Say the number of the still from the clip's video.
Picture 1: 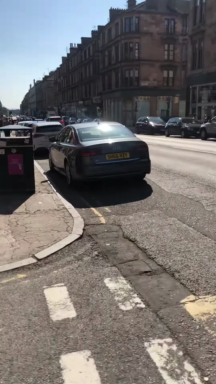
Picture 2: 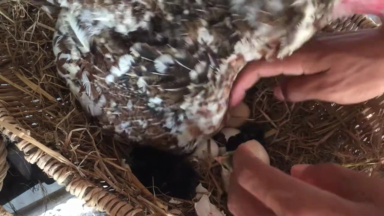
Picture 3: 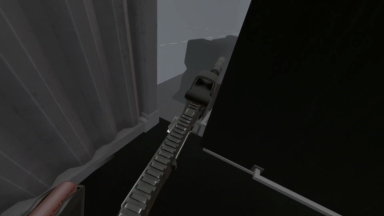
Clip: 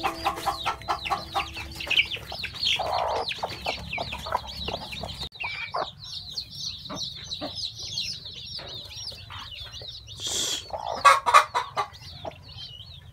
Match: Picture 2